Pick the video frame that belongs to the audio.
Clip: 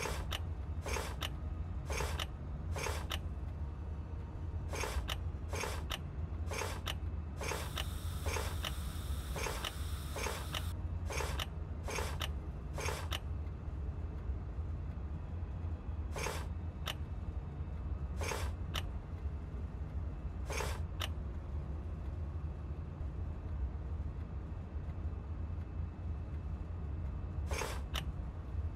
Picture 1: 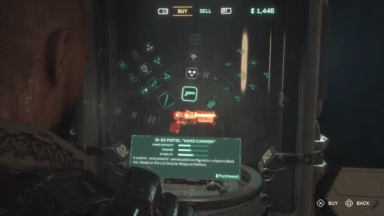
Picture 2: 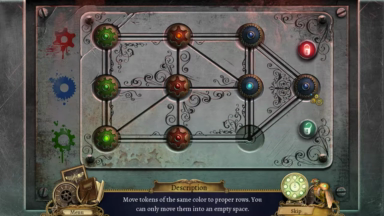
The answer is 2